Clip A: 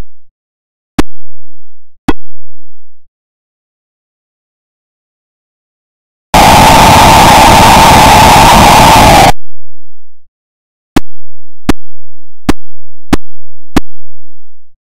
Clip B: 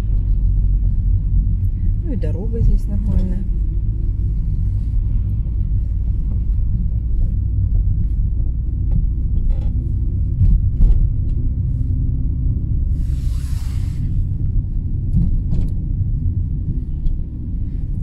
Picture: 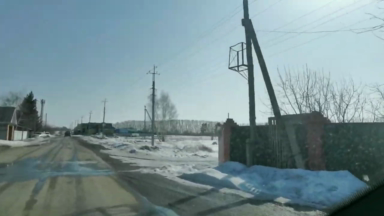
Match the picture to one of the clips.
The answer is B